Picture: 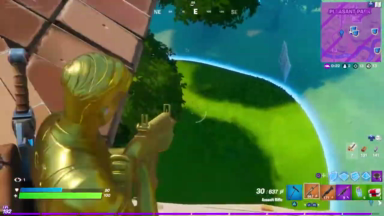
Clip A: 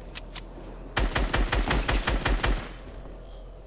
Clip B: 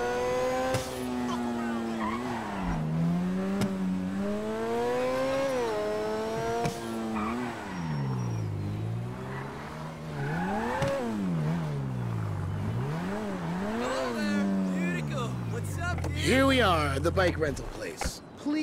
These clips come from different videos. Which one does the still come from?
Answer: A